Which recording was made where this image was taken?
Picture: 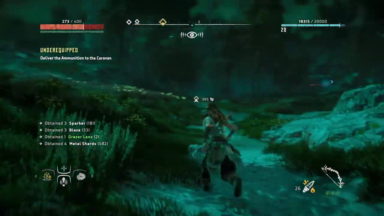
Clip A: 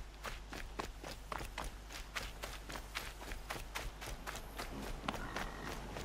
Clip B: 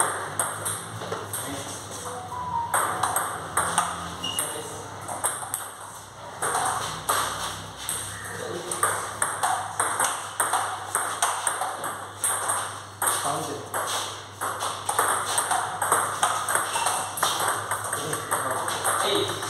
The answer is A